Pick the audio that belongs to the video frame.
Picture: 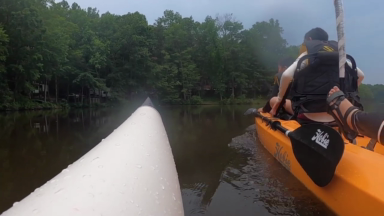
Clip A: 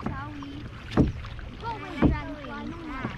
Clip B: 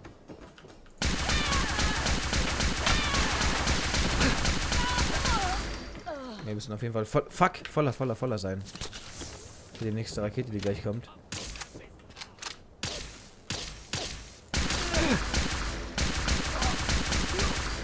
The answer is A